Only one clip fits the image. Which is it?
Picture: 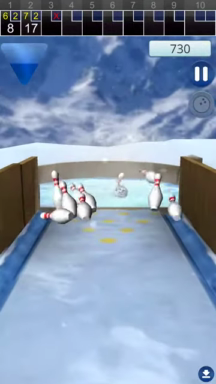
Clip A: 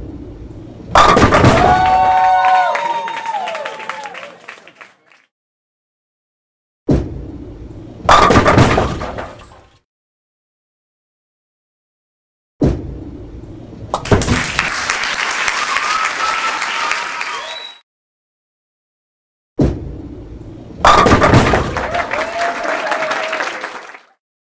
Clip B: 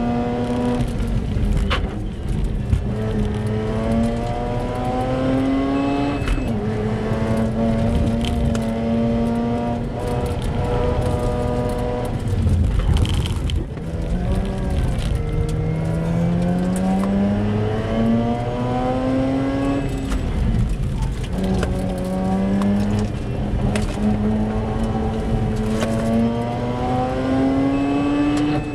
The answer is A